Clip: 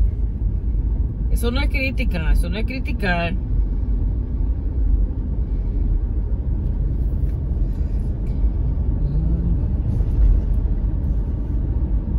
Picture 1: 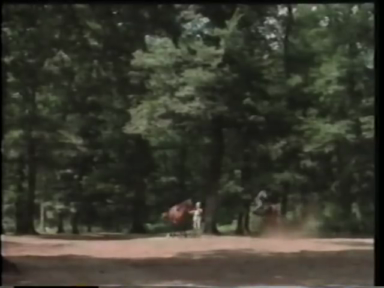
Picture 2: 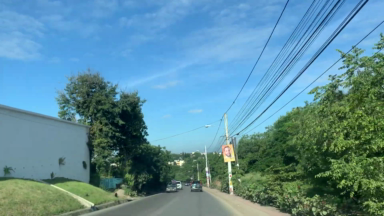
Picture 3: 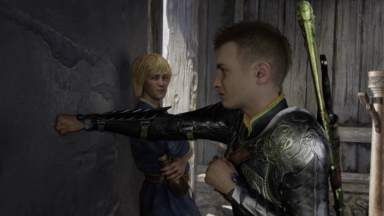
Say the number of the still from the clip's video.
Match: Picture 2